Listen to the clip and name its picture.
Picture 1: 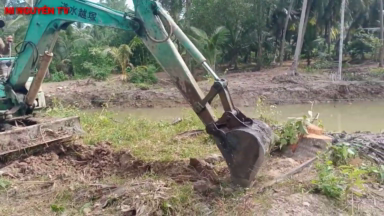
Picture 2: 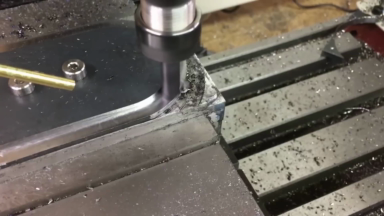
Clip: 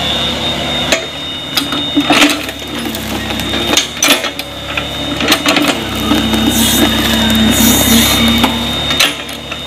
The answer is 1